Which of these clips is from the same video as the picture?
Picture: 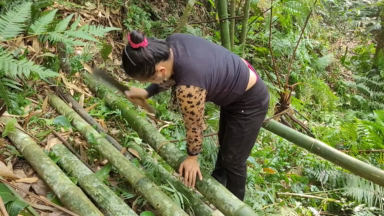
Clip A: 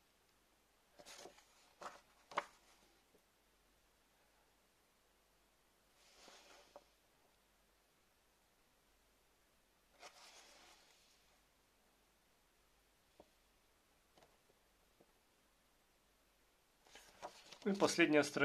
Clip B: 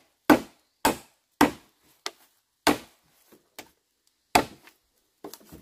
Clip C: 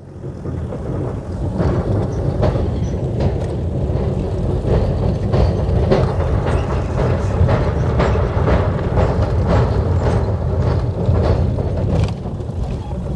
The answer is B